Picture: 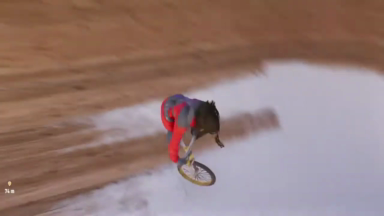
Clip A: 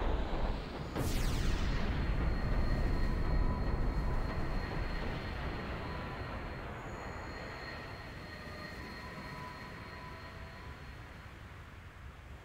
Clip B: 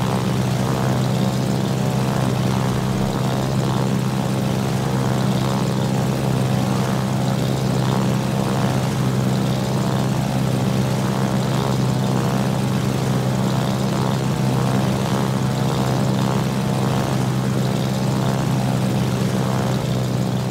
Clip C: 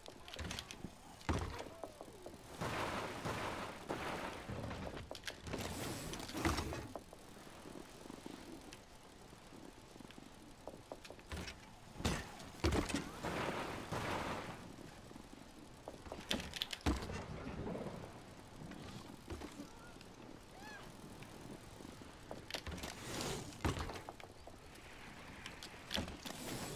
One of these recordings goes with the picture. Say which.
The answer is C